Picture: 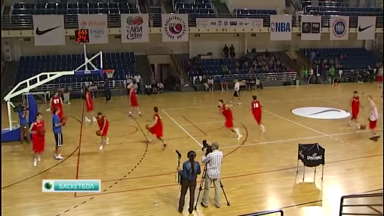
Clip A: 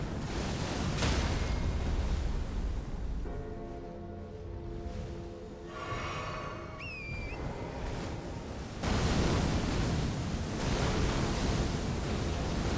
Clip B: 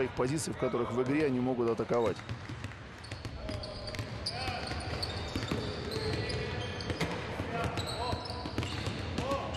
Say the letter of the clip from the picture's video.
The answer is B